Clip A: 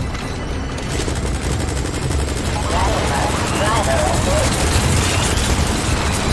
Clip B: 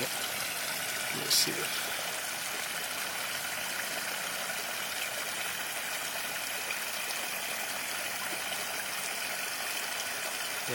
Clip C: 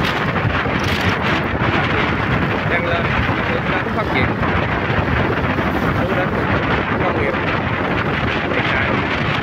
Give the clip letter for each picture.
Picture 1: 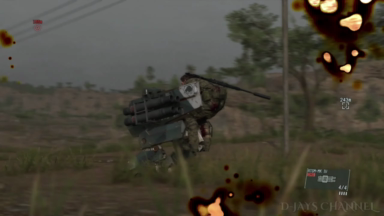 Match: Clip A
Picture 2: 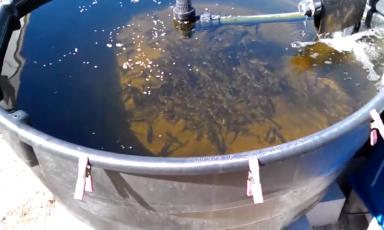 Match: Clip B